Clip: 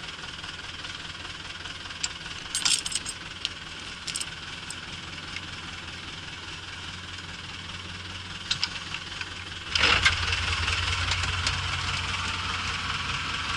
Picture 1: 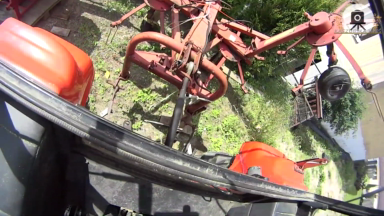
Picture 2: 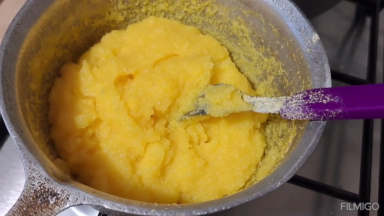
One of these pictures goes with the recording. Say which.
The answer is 1